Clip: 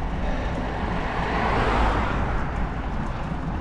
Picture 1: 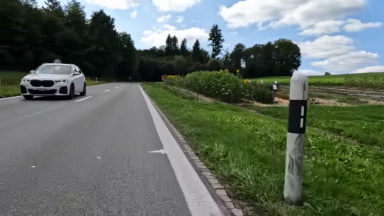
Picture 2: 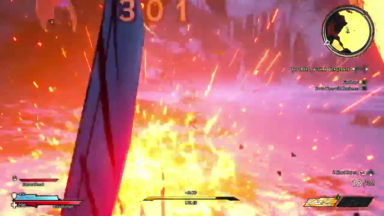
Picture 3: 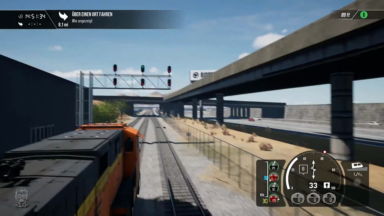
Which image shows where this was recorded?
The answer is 1